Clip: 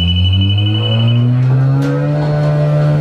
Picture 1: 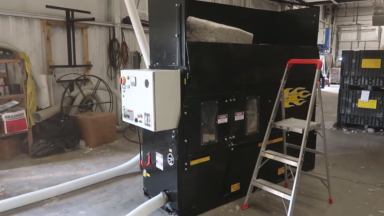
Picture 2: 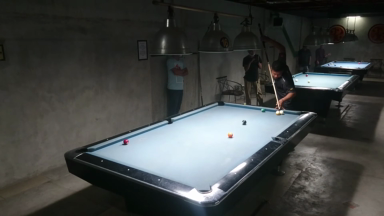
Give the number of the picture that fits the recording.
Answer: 1